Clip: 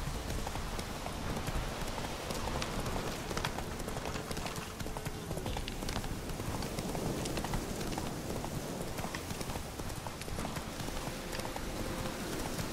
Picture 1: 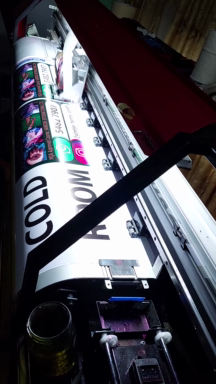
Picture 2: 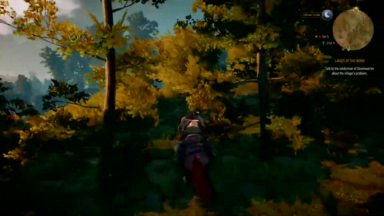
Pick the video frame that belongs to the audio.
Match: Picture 2